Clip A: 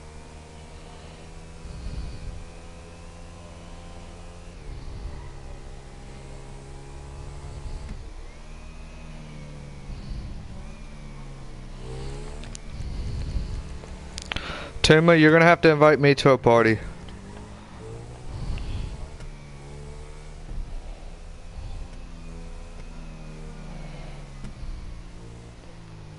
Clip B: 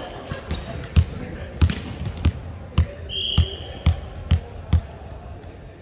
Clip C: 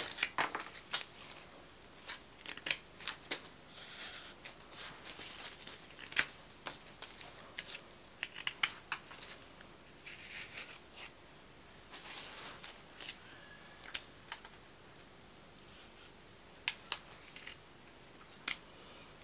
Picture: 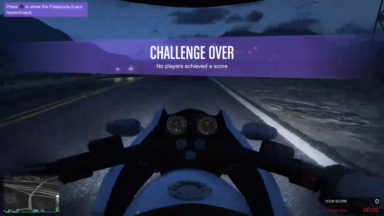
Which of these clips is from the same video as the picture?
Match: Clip A